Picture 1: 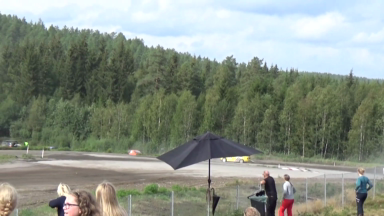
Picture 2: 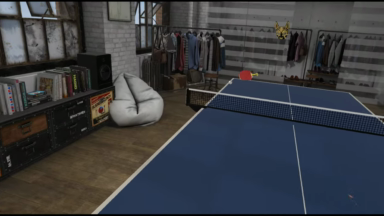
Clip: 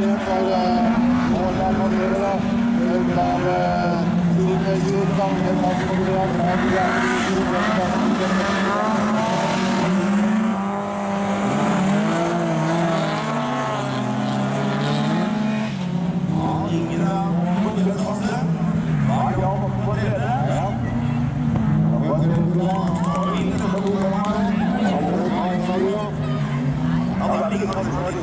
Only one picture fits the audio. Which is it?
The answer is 1